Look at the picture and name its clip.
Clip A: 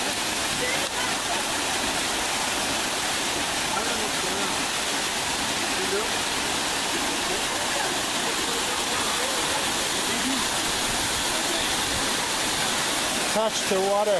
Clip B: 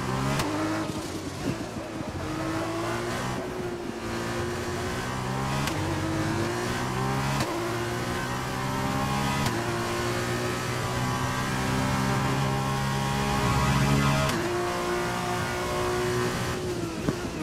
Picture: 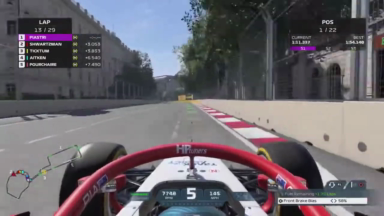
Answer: B